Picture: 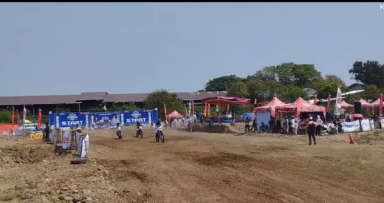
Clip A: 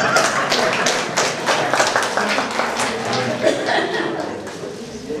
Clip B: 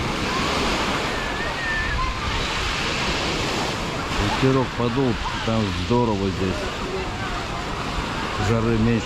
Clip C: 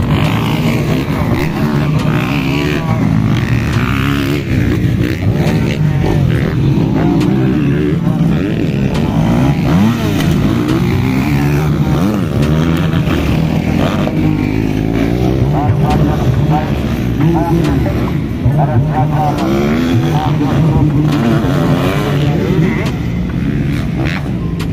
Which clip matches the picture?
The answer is C